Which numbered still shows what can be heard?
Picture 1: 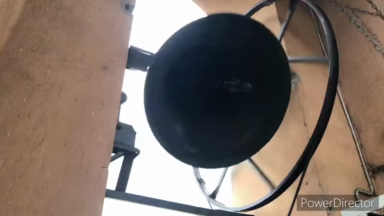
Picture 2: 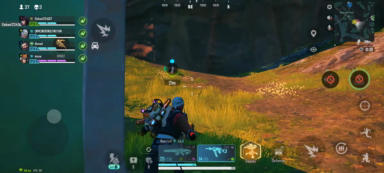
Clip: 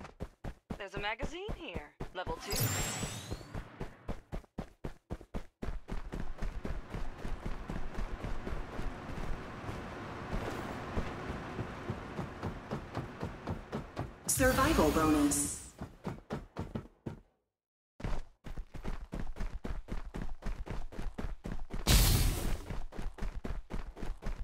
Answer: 2